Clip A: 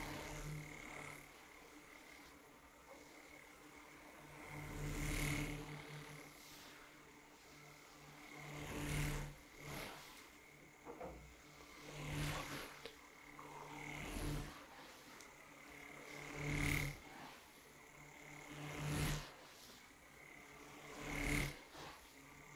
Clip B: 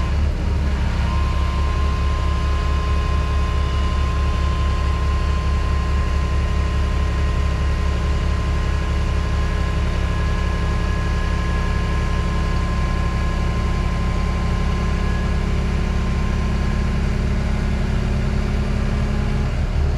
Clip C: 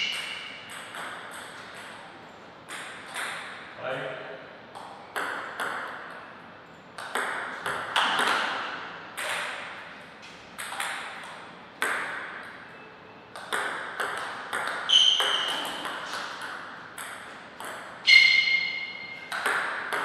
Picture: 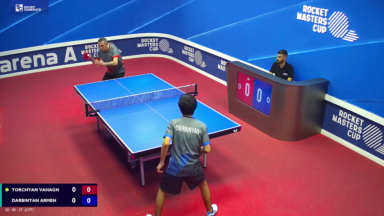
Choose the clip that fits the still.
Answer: C